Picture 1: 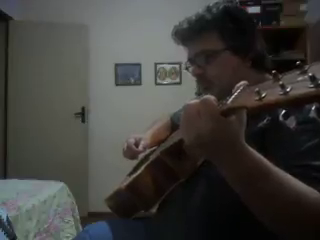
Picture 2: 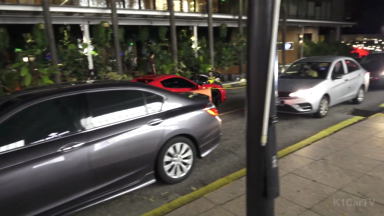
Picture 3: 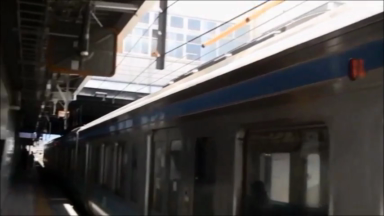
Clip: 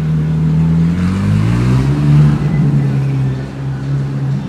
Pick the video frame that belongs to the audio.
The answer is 2